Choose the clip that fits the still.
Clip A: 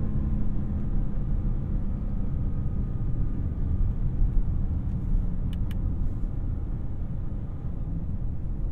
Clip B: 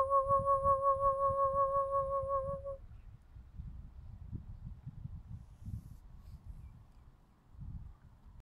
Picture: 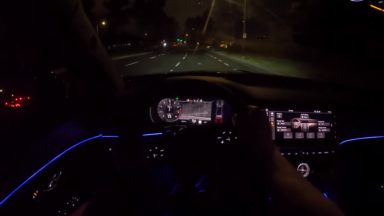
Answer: A